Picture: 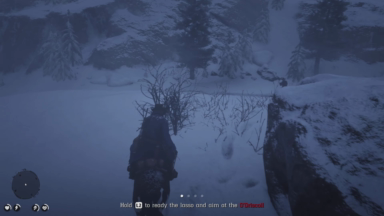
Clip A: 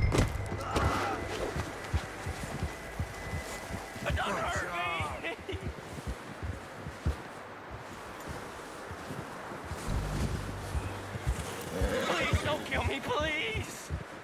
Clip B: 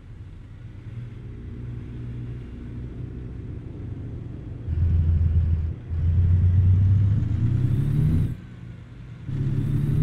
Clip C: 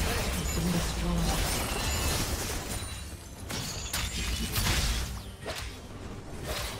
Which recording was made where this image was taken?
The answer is A